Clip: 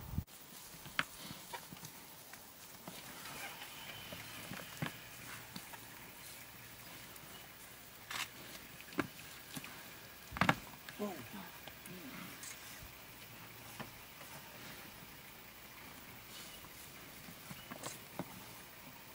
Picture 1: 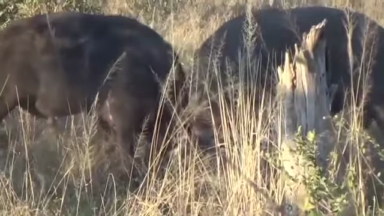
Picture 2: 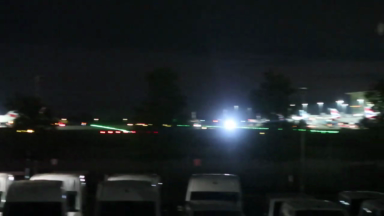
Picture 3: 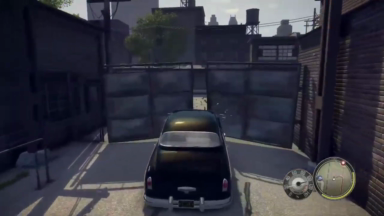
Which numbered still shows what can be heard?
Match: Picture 1